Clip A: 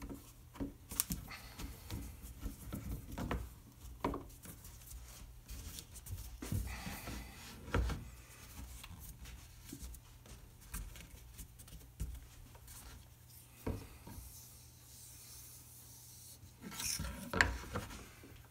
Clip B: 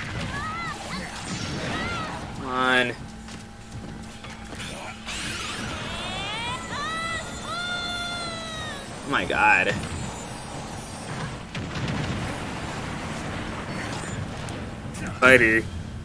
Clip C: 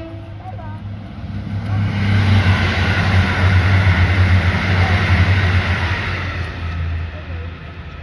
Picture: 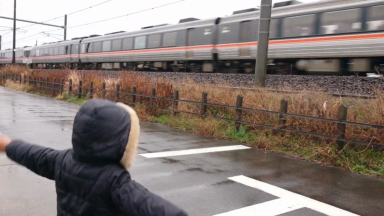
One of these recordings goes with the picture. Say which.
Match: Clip C